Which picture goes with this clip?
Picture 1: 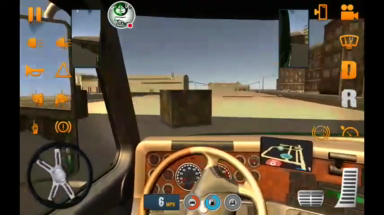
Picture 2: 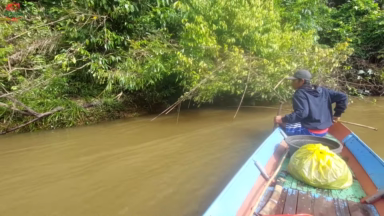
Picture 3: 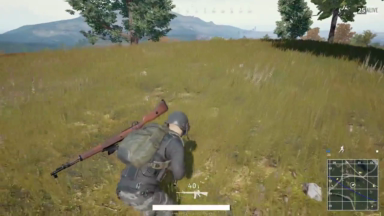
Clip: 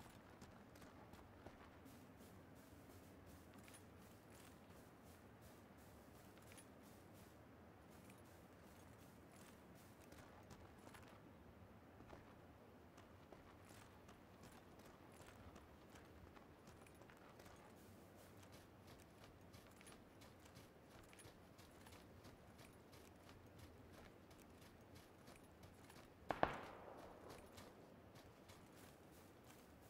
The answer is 3